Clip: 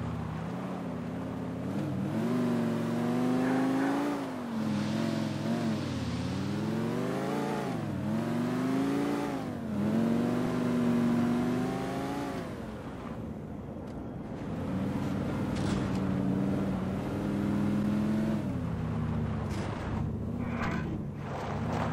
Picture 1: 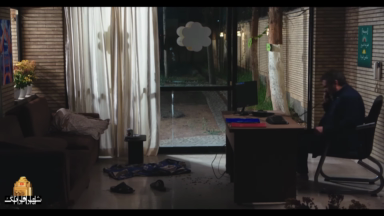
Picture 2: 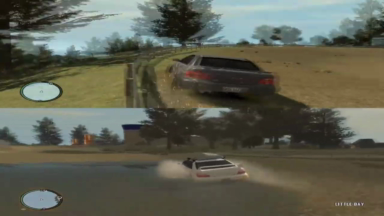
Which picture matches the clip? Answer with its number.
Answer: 2